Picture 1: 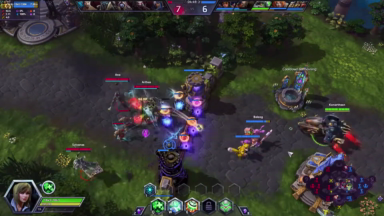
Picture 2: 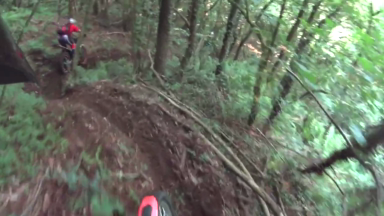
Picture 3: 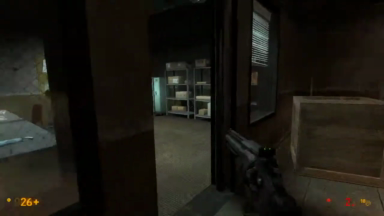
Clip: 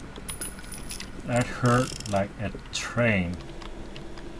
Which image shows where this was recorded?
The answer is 3